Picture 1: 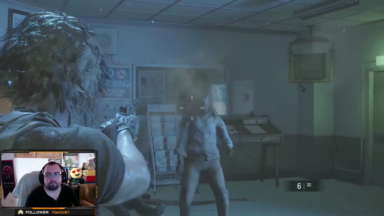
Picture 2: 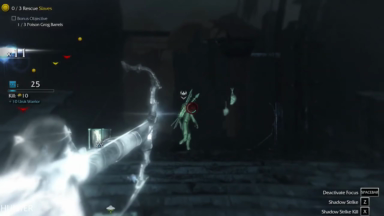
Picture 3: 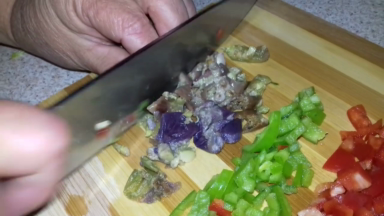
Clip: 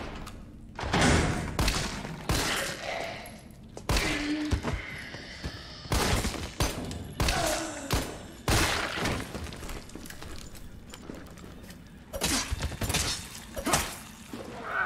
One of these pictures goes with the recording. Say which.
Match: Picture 1